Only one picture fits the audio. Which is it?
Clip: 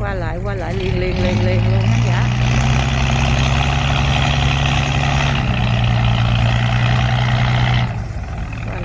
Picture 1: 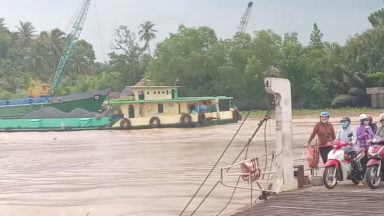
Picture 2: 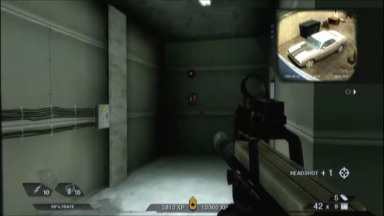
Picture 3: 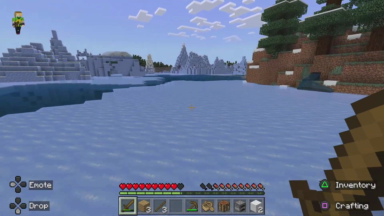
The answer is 1